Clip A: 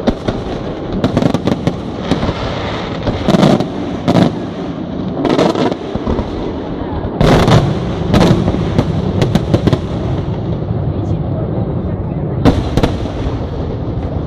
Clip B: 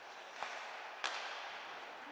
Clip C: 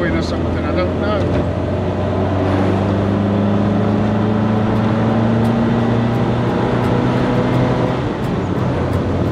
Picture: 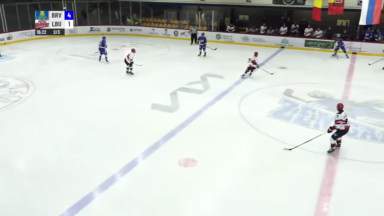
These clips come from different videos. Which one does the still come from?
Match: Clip B